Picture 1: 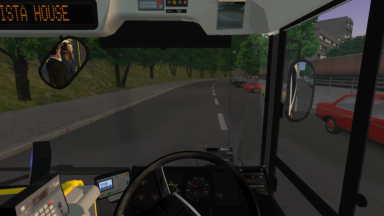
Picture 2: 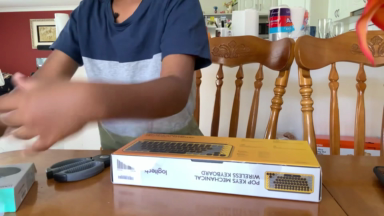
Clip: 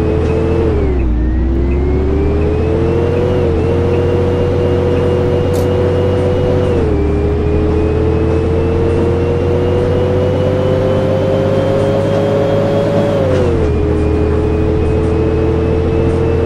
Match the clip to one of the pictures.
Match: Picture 1